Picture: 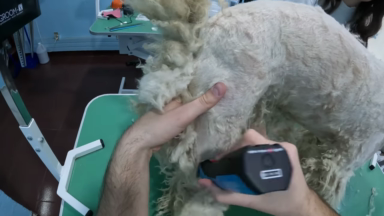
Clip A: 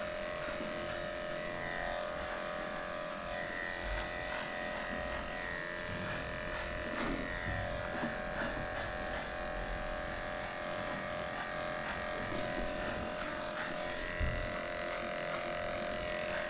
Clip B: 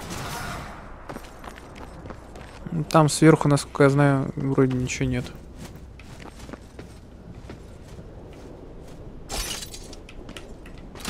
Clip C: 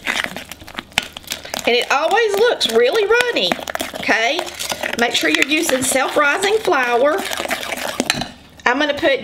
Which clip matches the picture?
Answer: A